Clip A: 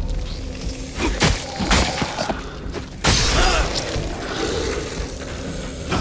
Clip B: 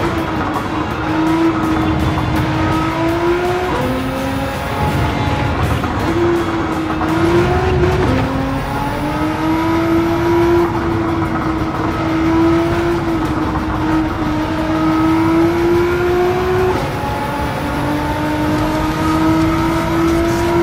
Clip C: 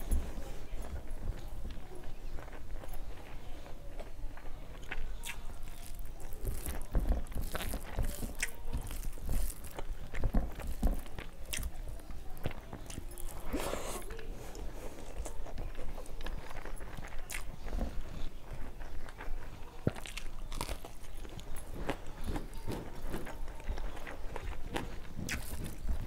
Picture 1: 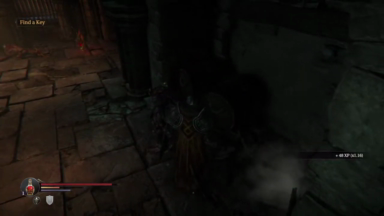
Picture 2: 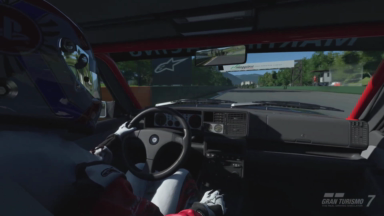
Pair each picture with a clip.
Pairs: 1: A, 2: B